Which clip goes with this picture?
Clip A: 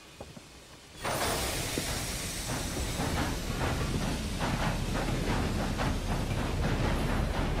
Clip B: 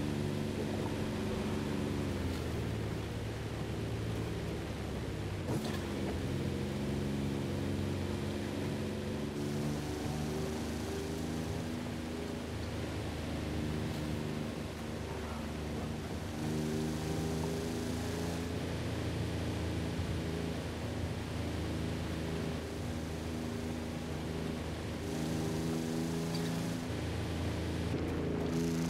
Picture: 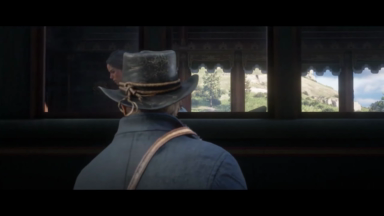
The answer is A